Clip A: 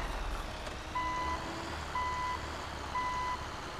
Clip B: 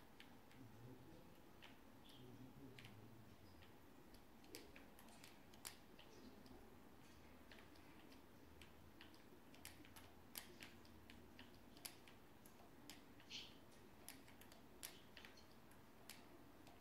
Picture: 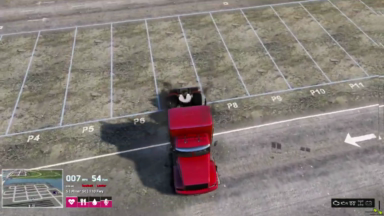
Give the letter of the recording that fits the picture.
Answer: A